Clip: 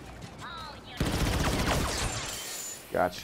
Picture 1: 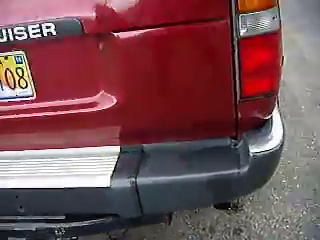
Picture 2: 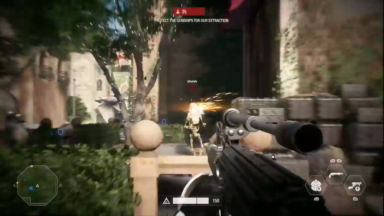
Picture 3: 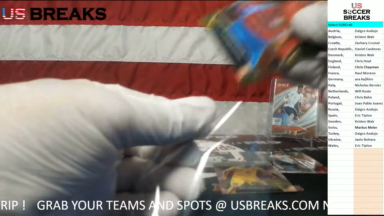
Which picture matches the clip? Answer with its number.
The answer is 2